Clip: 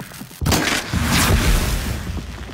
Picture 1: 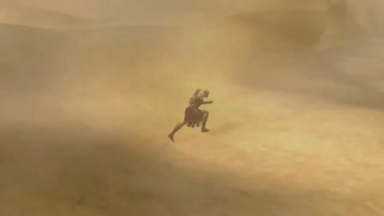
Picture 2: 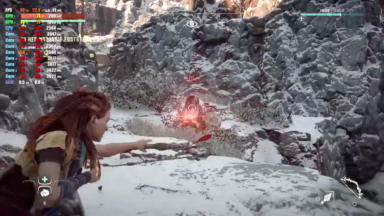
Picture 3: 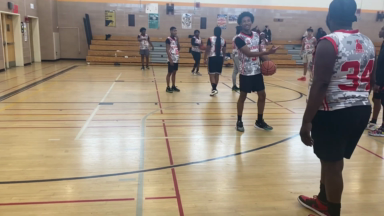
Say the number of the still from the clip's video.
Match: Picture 2